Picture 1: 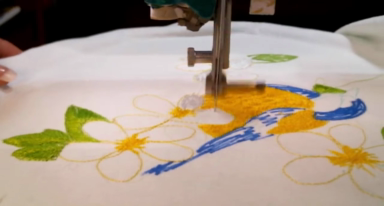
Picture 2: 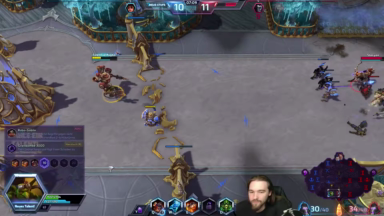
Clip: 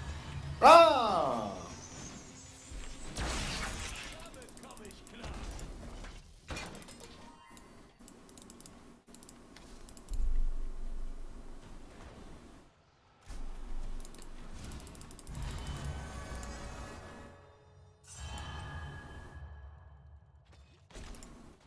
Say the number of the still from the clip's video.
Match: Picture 2